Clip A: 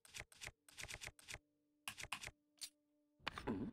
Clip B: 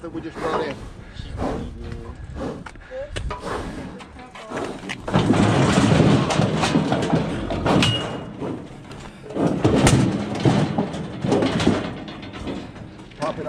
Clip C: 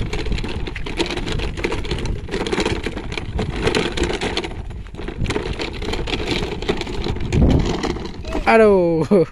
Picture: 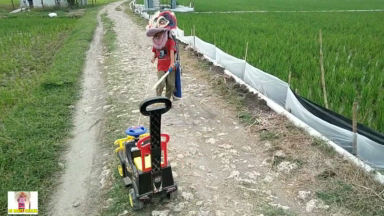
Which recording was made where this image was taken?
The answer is C